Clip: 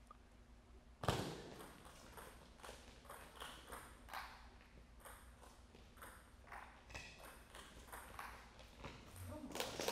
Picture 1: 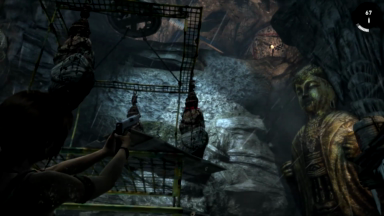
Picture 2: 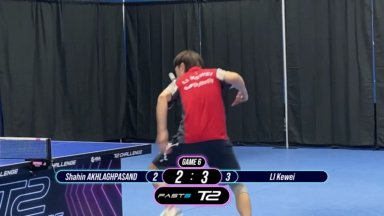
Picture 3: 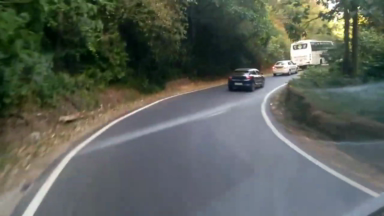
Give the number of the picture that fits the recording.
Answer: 2